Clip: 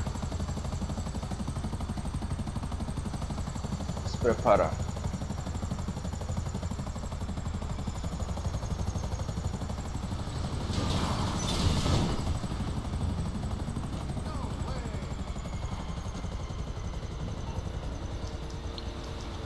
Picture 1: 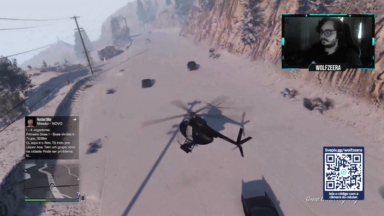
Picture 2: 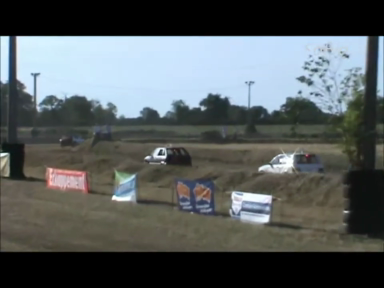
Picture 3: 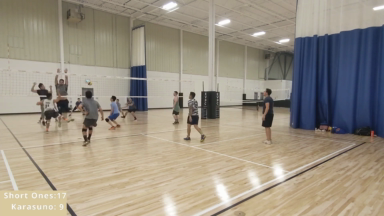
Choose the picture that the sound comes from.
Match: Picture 1